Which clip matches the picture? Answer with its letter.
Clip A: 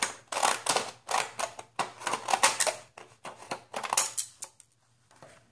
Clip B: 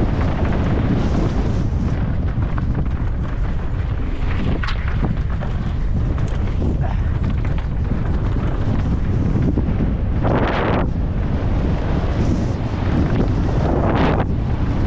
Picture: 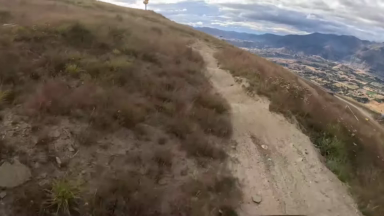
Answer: B